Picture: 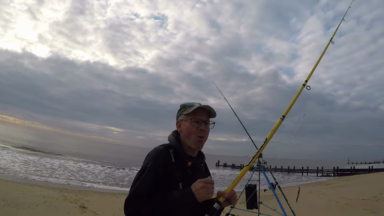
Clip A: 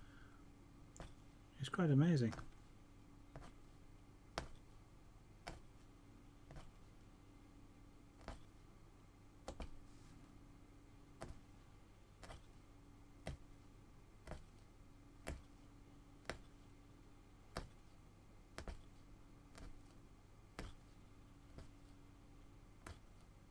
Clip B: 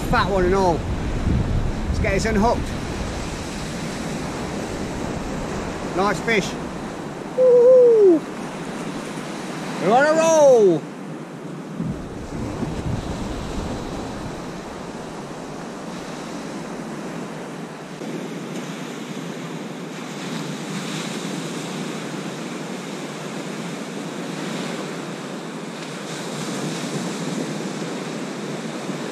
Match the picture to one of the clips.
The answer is B